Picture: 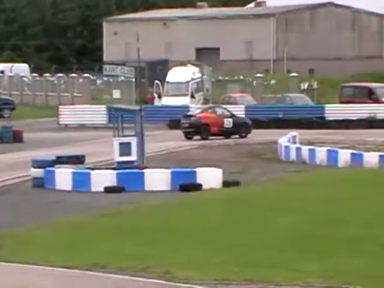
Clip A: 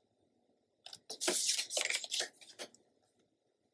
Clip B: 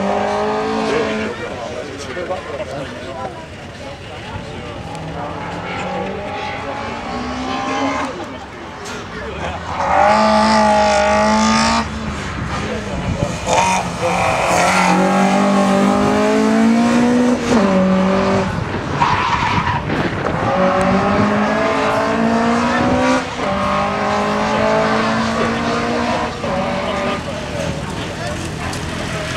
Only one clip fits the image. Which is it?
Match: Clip B